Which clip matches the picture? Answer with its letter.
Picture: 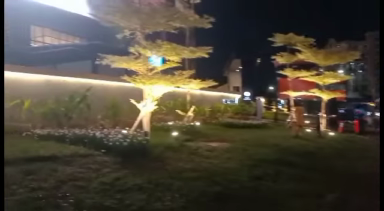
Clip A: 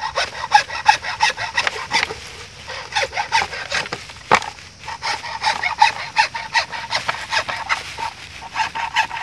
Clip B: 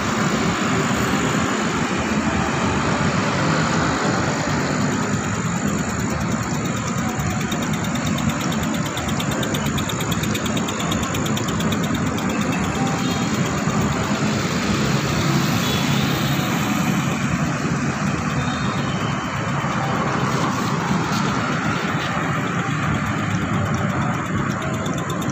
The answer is B